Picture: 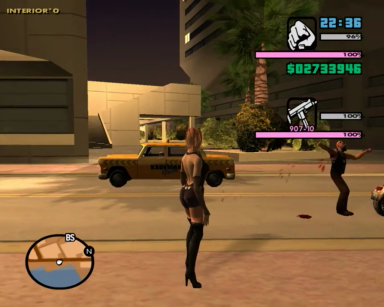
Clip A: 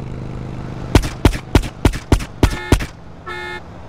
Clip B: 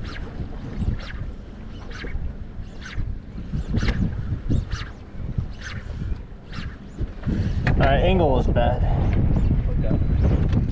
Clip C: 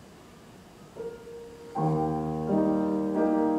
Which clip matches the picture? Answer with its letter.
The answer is A